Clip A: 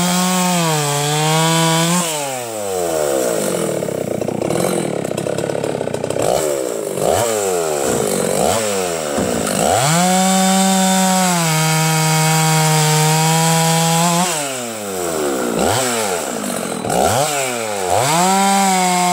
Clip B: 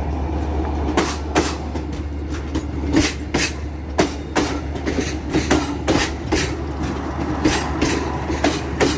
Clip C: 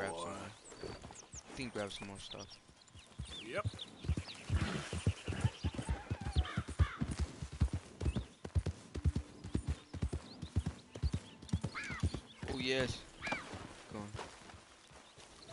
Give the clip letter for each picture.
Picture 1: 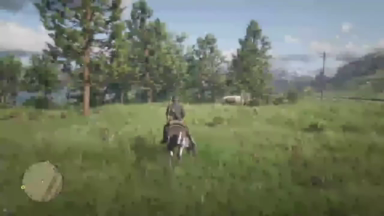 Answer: C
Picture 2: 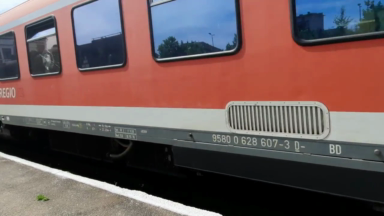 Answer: B